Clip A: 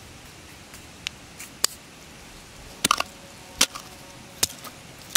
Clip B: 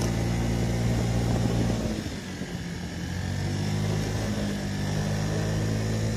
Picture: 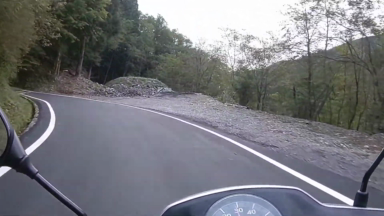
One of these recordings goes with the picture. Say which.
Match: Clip B